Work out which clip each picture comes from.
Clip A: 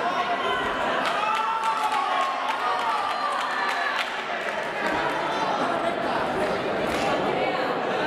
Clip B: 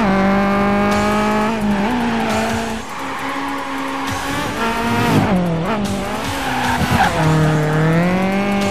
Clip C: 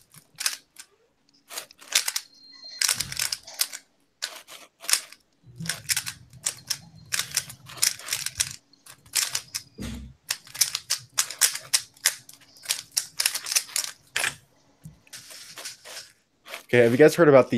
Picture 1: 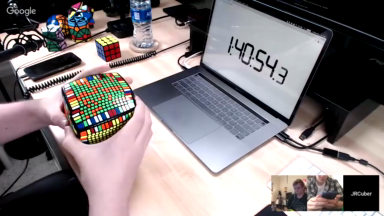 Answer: C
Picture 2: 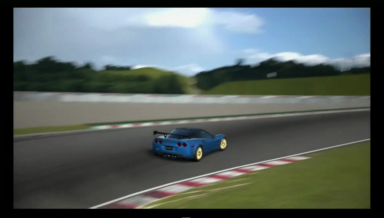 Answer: B